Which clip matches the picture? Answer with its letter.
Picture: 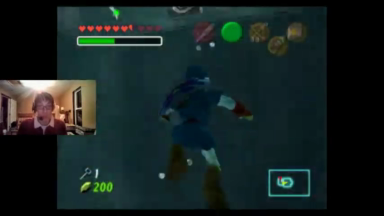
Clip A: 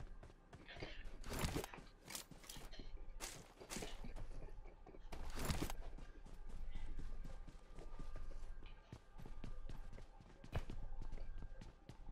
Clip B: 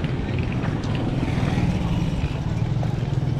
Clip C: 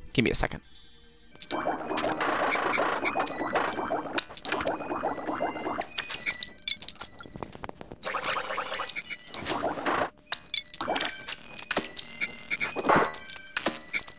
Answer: C